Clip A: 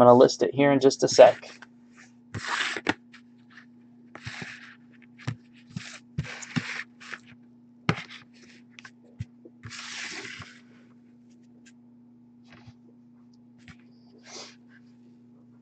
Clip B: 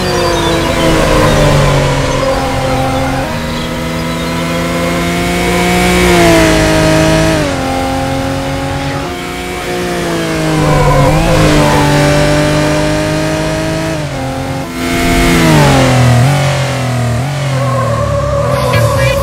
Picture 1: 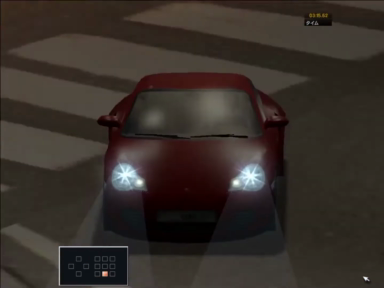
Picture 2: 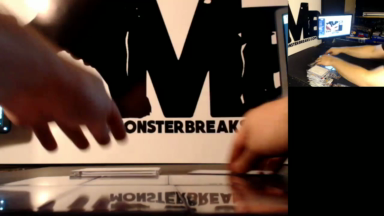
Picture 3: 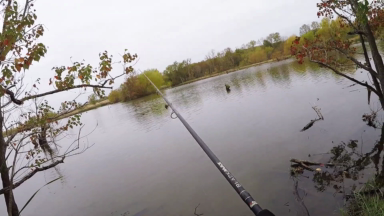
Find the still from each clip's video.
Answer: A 2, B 1